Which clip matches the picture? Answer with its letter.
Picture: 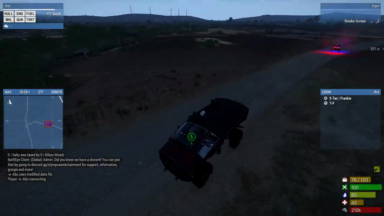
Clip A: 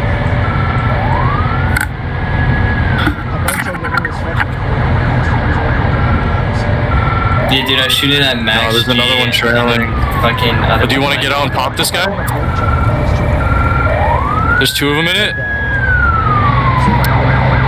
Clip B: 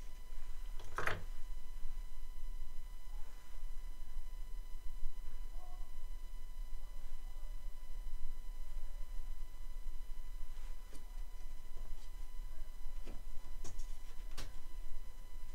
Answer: A